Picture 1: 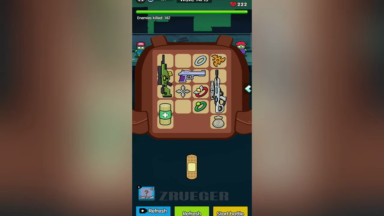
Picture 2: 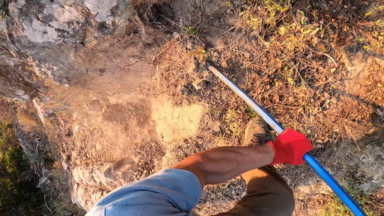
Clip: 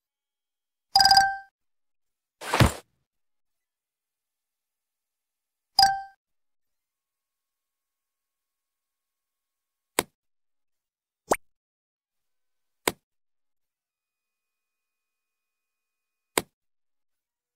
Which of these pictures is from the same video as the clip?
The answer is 1